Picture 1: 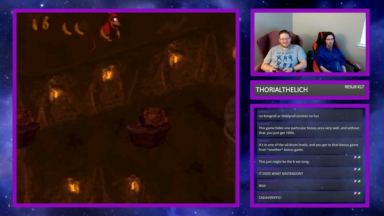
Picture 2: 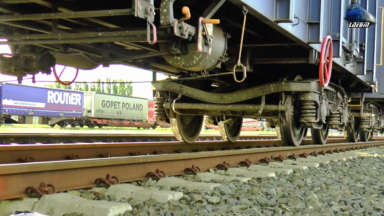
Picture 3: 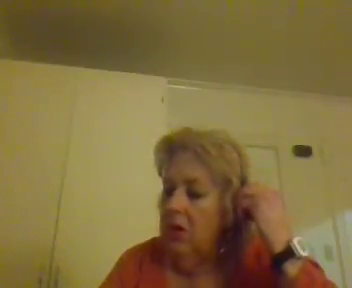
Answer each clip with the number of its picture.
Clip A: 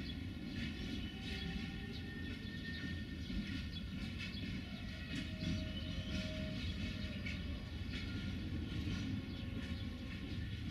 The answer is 2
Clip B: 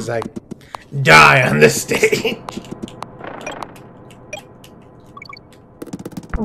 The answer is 1